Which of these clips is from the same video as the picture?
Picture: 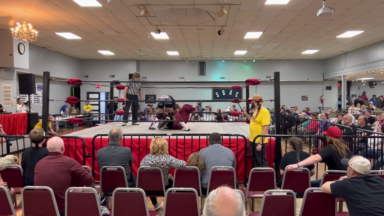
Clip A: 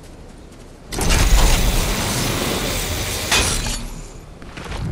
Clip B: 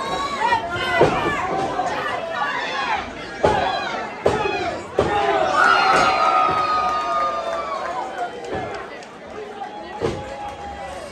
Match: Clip B